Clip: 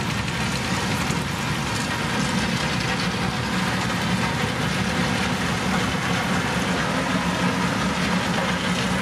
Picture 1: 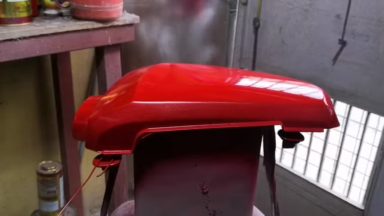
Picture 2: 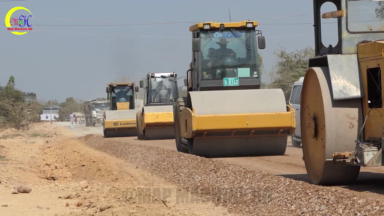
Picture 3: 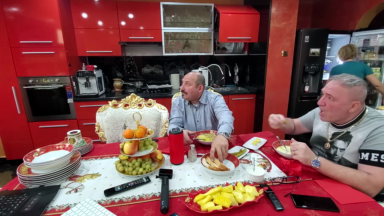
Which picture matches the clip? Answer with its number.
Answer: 2